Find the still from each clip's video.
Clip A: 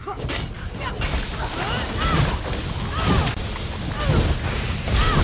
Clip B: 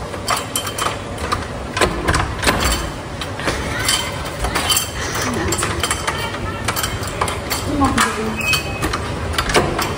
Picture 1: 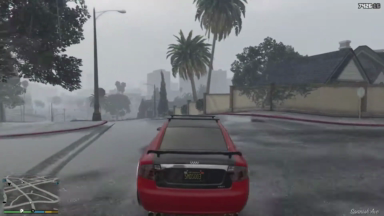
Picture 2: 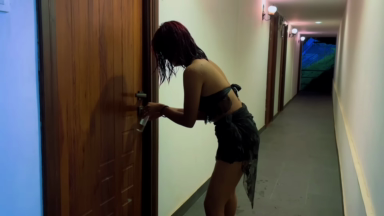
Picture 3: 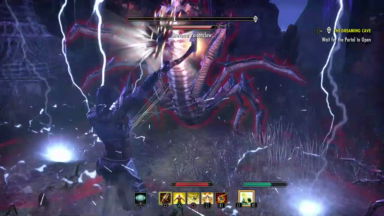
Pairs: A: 3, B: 2